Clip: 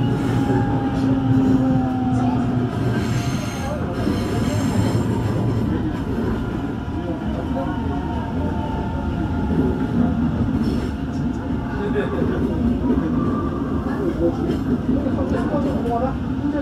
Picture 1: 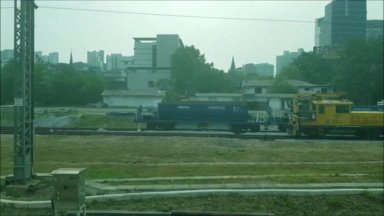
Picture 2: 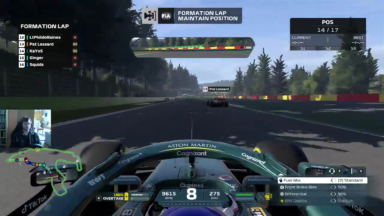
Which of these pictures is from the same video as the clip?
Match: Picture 1